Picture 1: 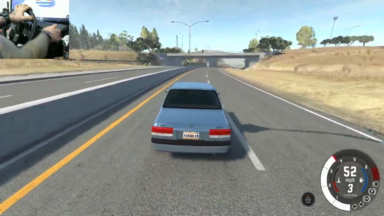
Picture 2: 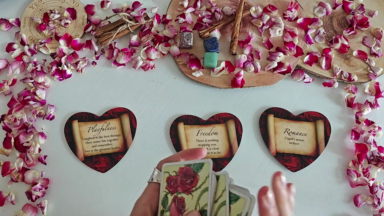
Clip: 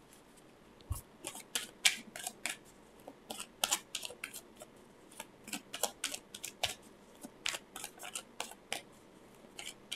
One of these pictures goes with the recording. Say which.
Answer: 2